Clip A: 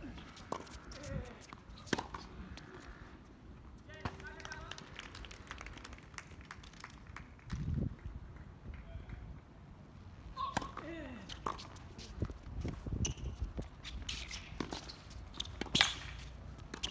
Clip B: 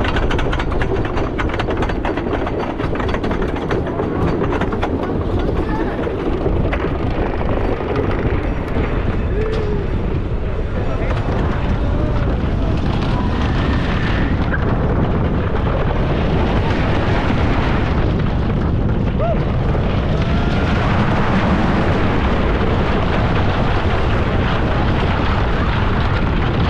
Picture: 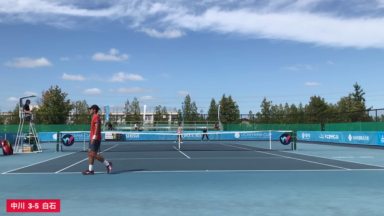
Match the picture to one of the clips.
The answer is A